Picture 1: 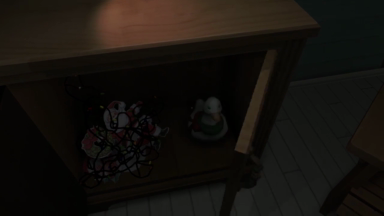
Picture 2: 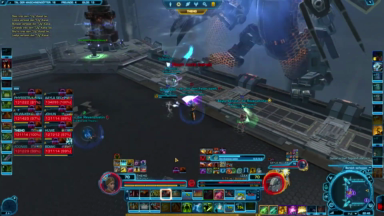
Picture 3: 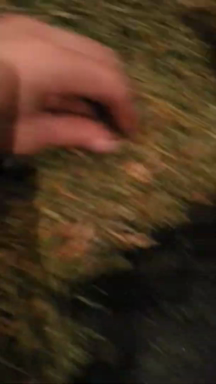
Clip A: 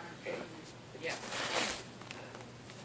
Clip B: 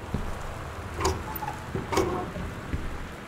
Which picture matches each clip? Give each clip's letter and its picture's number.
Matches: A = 3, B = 1